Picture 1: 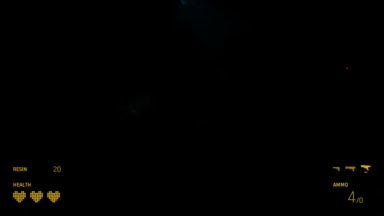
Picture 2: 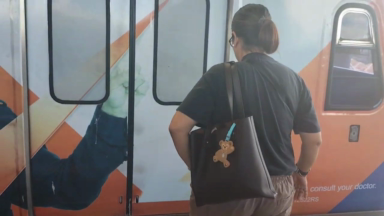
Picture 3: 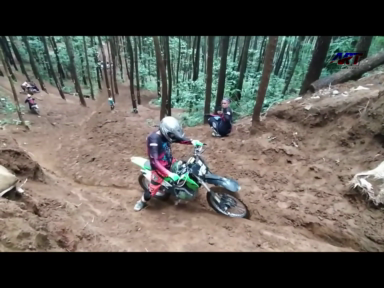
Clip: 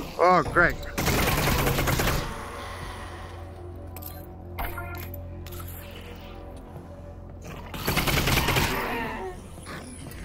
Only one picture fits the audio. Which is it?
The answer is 1